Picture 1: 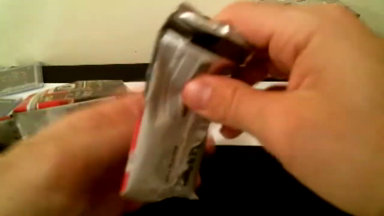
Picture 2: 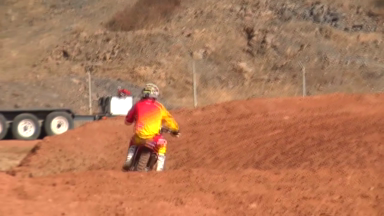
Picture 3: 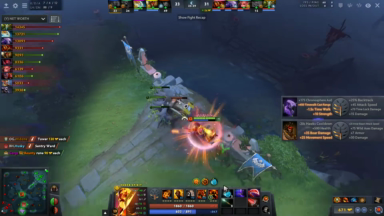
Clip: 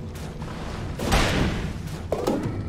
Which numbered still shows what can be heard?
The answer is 3